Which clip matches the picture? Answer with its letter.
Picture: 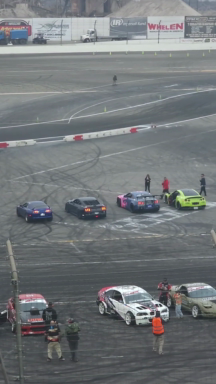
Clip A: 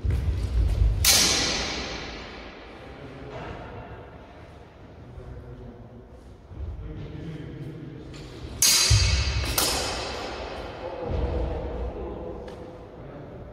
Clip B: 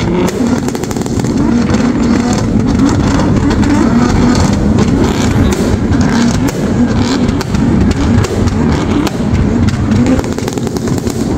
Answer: B